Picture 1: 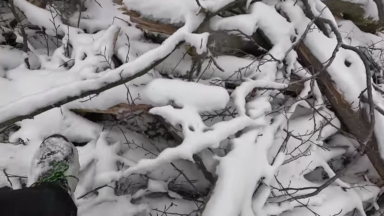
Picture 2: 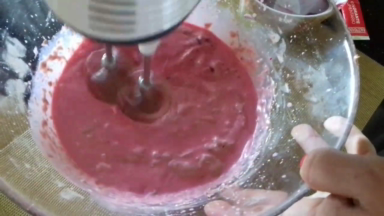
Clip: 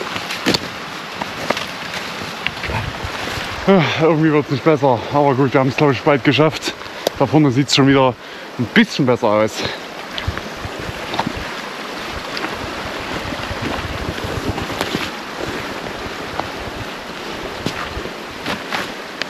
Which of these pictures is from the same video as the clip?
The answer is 1